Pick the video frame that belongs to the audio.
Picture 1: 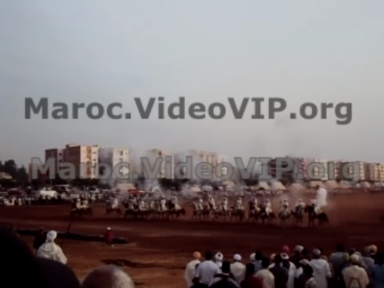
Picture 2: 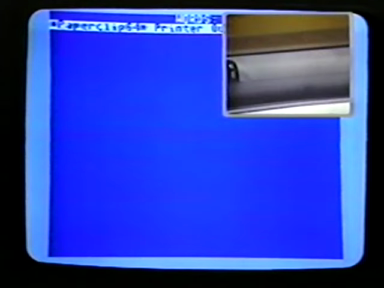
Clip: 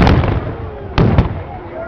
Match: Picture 1